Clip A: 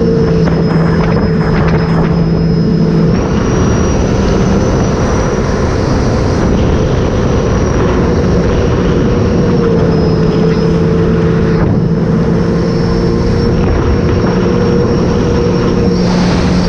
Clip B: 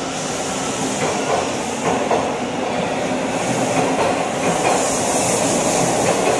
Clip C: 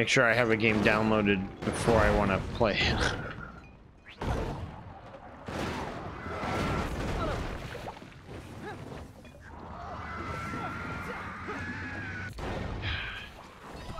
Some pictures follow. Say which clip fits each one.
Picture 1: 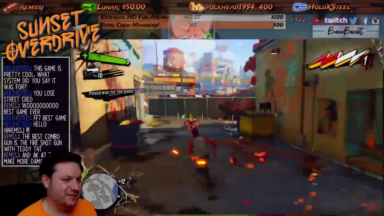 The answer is C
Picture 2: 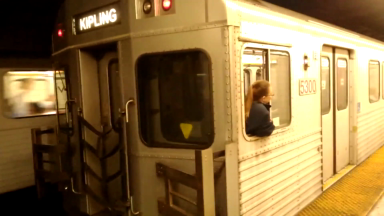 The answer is B